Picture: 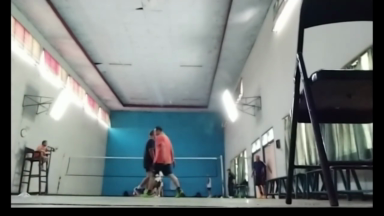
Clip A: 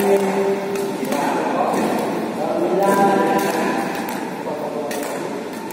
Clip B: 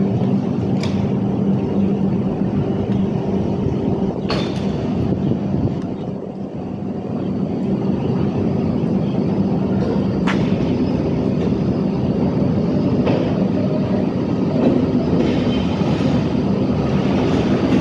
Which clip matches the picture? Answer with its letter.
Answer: A